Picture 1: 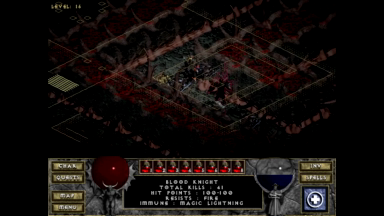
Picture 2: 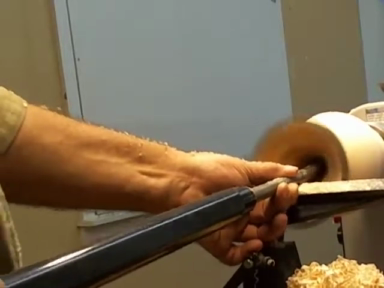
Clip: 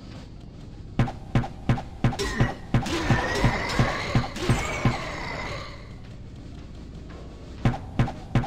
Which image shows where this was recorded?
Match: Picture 1